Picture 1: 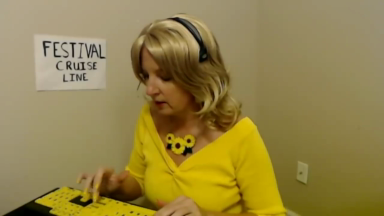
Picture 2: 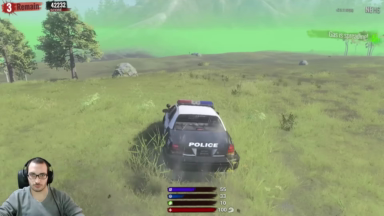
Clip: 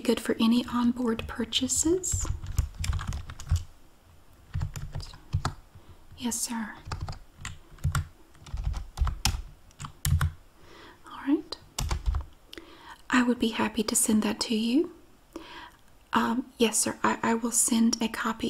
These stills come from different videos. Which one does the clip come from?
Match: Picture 1